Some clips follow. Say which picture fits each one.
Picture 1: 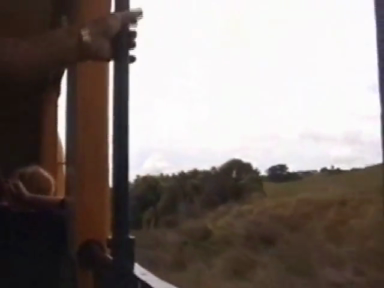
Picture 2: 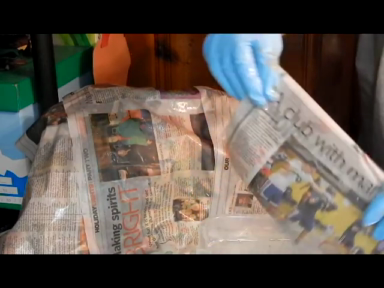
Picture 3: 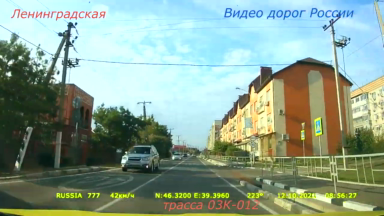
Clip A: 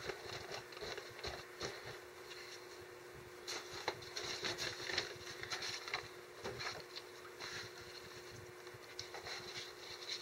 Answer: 2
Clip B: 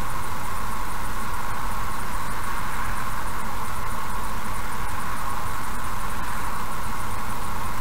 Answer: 3